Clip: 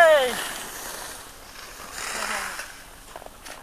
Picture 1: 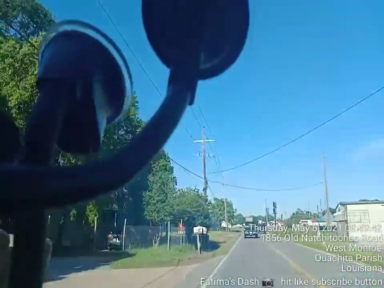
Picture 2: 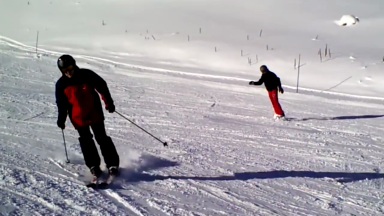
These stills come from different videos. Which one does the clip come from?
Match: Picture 2